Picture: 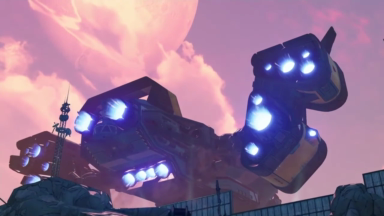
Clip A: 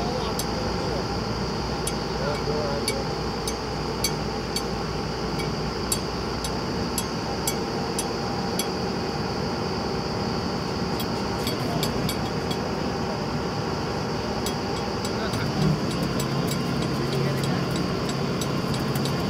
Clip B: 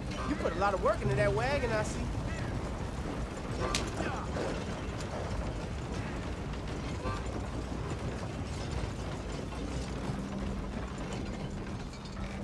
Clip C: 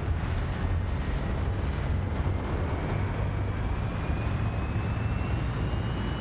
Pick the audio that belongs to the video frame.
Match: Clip C